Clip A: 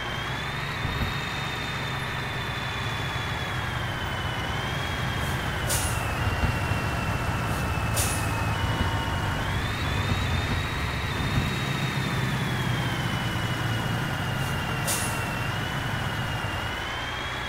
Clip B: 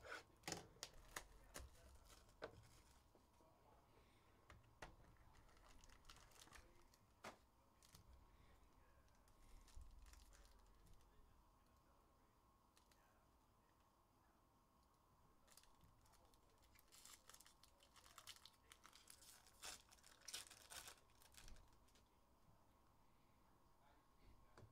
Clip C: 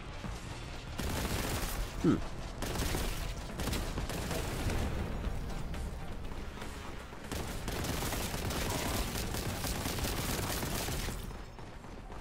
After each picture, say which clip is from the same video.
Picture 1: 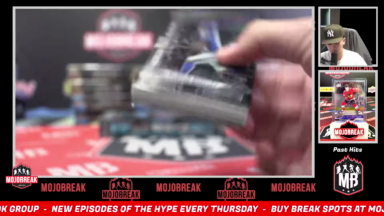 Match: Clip B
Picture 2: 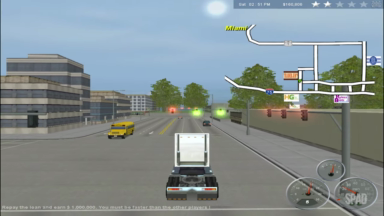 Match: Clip A